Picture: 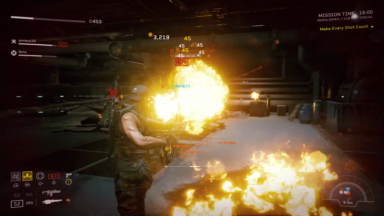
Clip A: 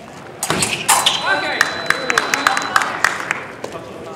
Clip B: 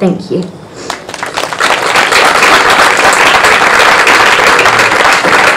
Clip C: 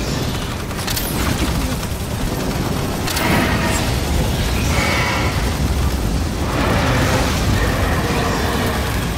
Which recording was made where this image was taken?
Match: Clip C